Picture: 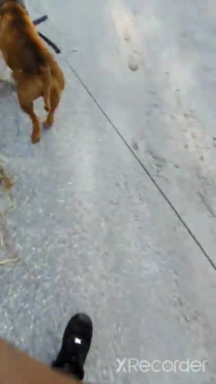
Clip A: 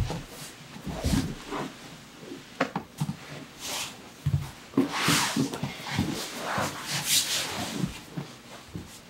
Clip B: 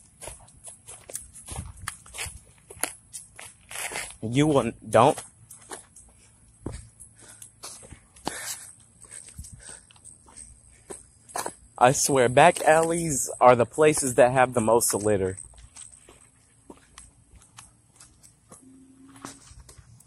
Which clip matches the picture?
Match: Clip B